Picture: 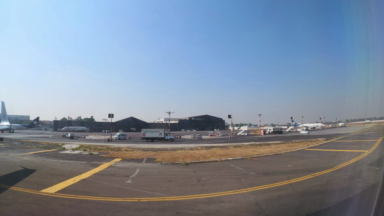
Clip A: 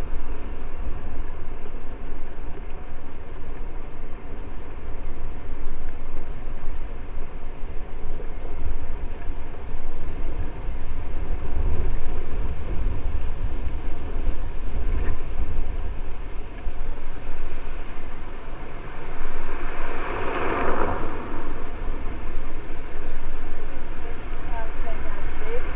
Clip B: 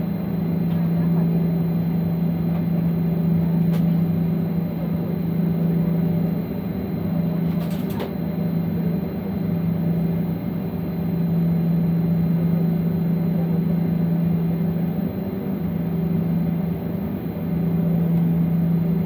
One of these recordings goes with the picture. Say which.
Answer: B